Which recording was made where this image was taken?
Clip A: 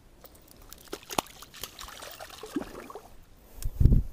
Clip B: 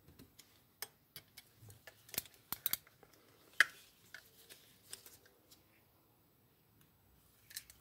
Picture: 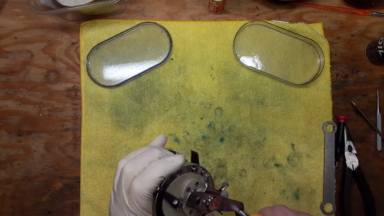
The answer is B